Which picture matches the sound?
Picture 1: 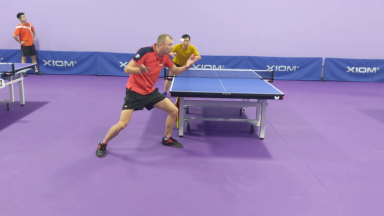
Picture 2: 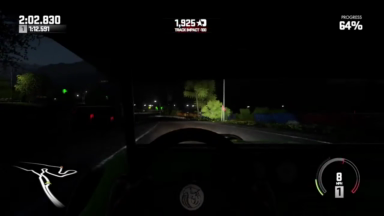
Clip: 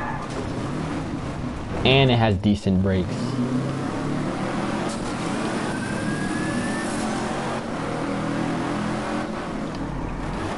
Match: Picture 2